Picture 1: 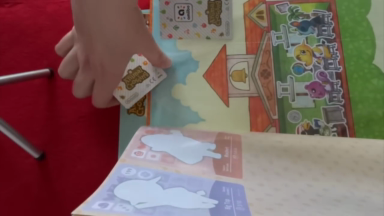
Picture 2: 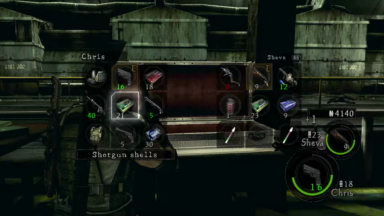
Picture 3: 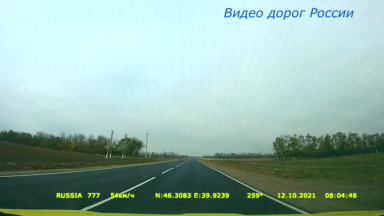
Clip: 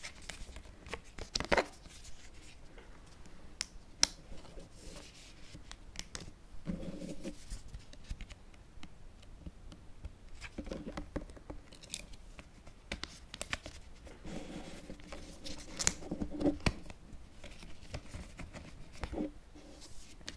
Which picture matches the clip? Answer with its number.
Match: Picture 1